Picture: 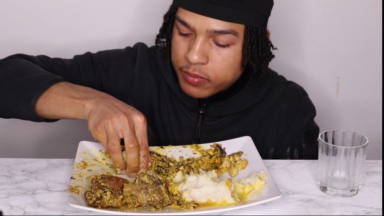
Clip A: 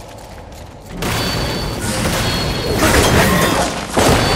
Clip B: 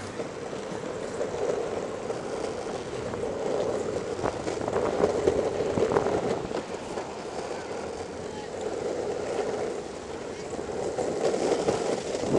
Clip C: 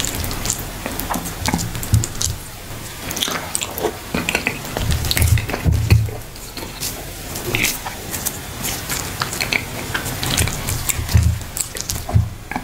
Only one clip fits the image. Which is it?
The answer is C